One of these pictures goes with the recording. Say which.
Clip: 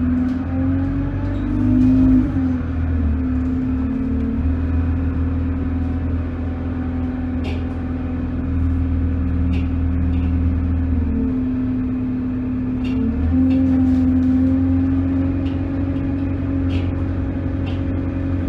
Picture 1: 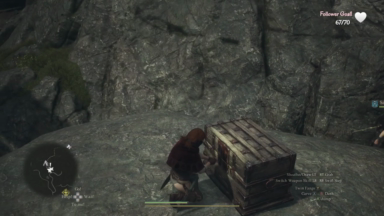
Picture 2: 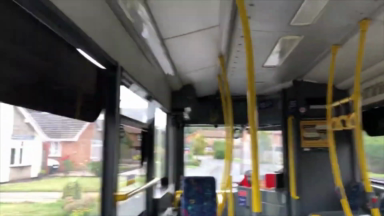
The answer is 2